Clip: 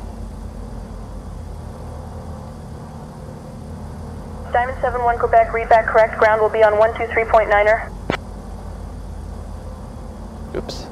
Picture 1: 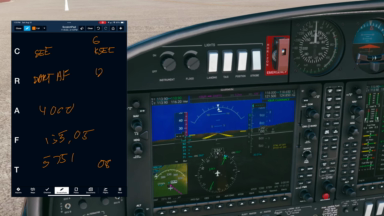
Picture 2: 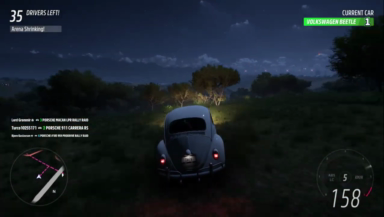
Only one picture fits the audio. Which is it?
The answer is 1